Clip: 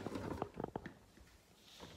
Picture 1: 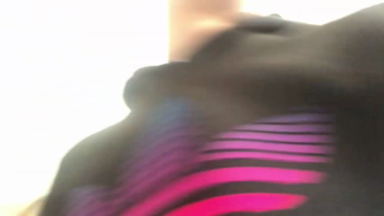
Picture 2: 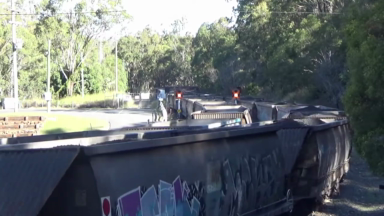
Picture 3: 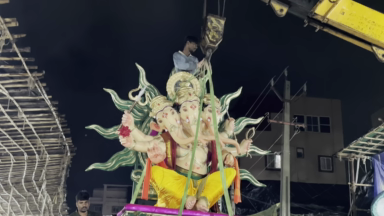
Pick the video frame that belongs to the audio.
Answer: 1